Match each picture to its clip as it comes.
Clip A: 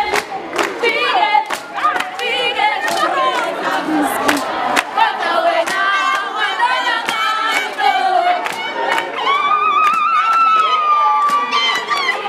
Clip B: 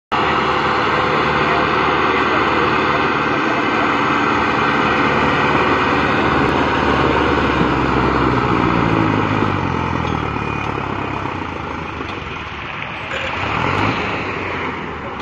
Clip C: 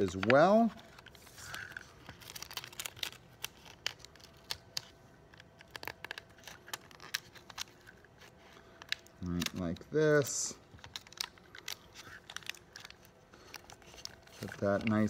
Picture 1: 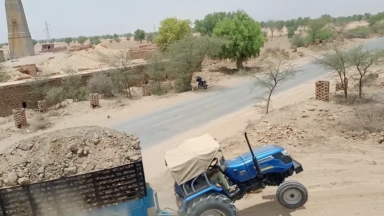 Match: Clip B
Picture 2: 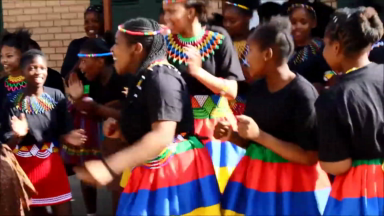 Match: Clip A